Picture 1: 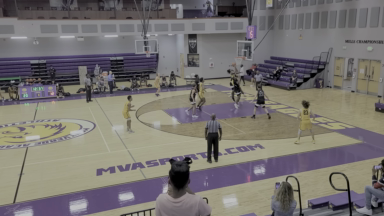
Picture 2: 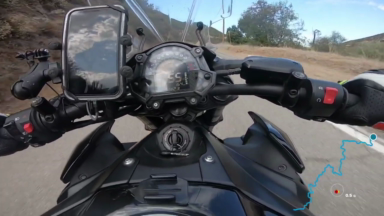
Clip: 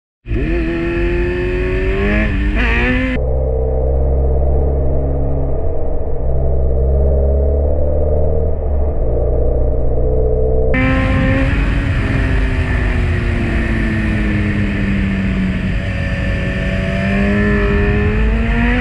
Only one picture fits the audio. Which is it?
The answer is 2